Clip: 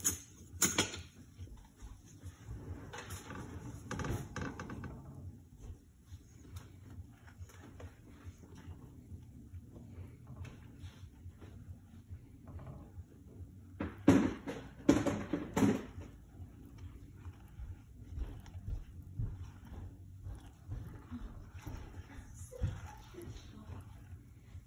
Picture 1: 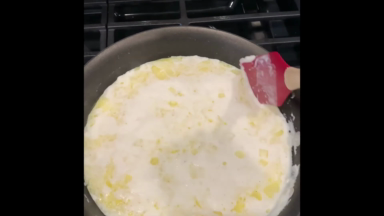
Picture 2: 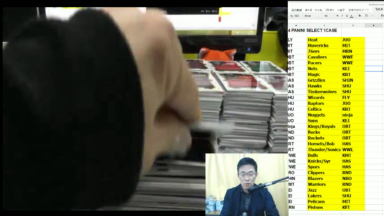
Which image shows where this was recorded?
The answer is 1